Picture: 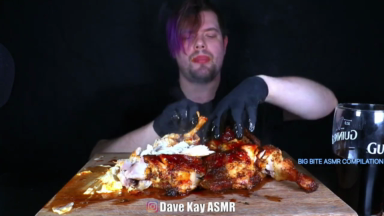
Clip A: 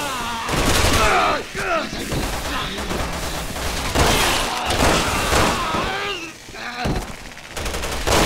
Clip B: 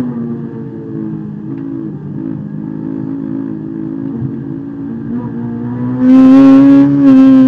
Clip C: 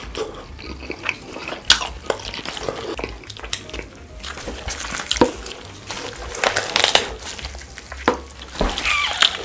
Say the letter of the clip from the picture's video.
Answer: C